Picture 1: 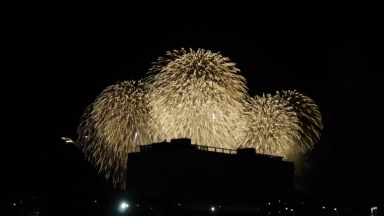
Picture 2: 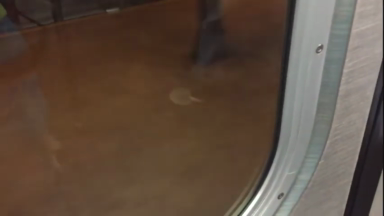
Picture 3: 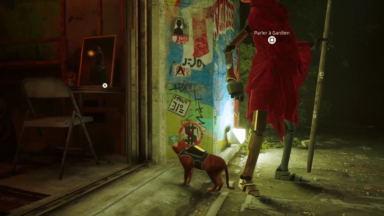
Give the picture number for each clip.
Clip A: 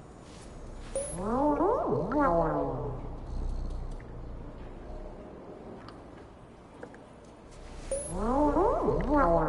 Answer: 3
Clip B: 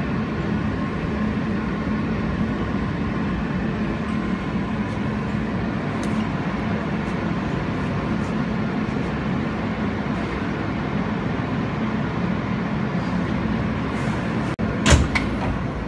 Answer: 2